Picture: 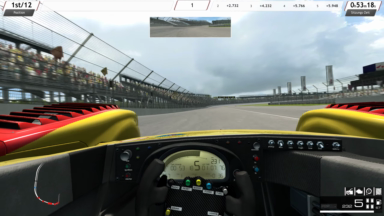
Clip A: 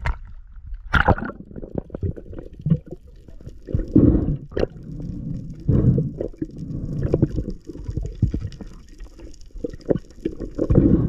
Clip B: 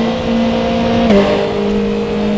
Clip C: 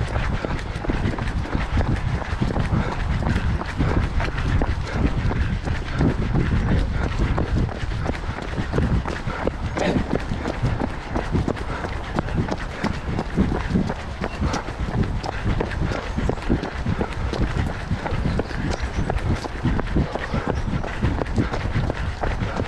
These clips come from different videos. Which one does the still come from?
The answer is B